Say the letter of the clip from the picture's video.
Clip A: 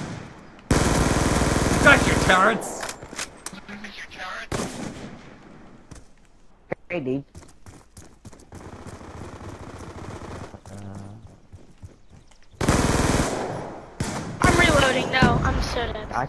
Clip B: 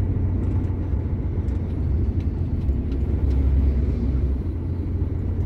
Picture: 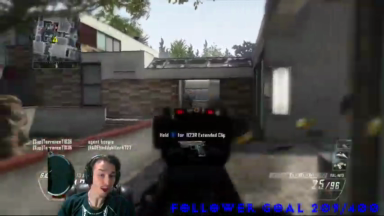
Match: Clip A